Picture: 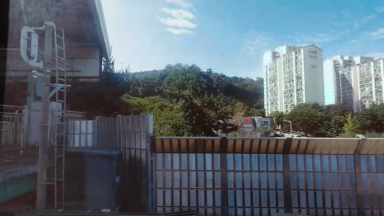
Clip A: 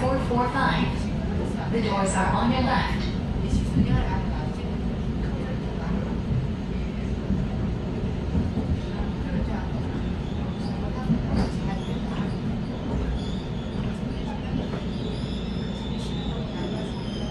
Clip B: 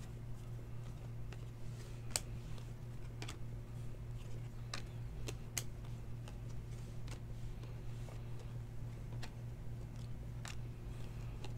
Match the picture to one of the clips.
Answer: A